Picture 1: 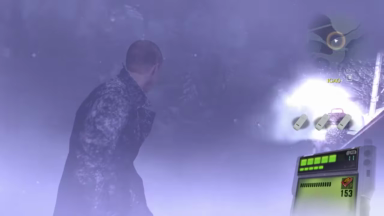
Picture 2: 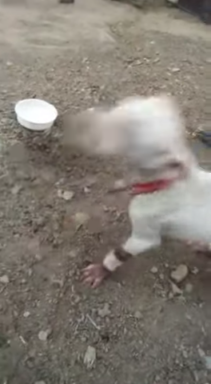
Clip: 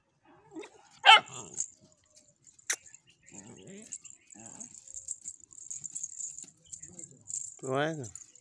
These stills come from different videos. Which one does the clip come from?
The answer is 2